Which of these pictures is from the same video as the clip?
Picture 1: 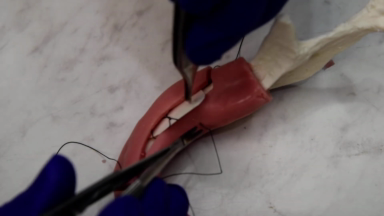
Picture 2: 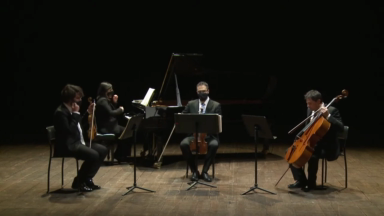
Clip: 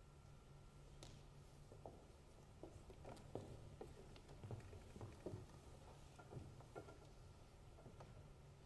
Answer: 2